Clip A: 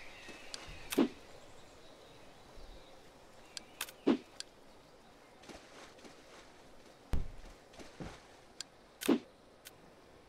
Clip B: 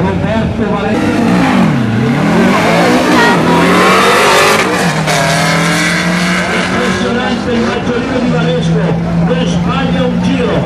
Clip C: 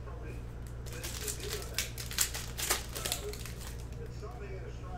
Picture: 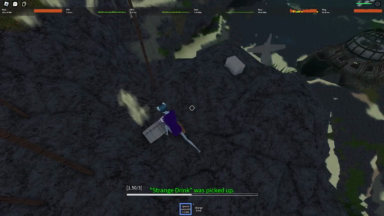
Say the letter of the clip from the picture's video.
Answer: A